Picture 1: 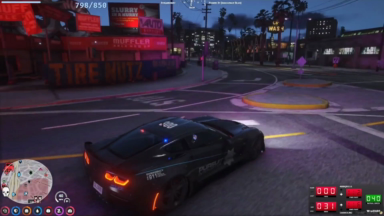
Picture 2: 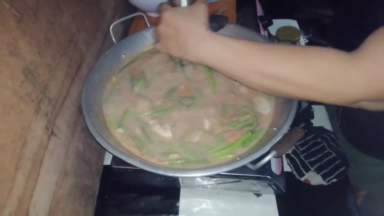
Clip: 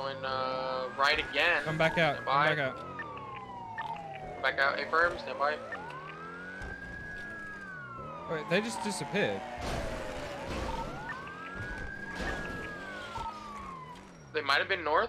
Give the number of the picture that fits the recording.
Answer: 1